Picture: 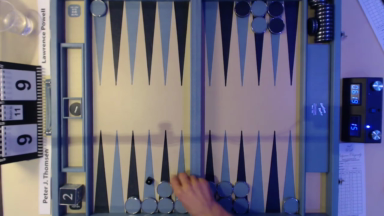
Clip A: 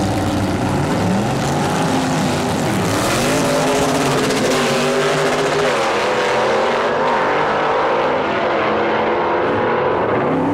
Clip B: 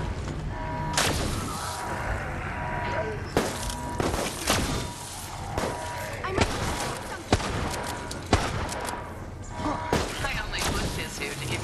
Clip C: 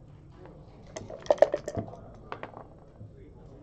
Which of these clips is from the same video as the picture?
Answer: C